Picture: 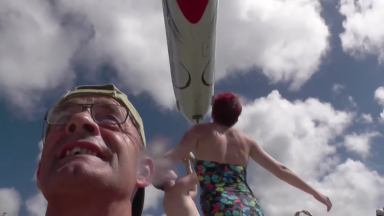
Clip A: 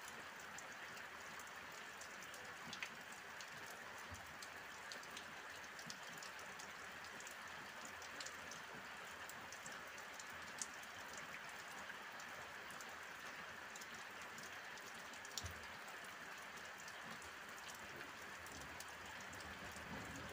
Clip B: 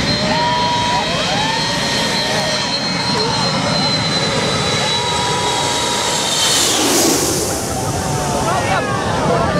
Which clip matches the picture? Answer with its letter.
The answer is B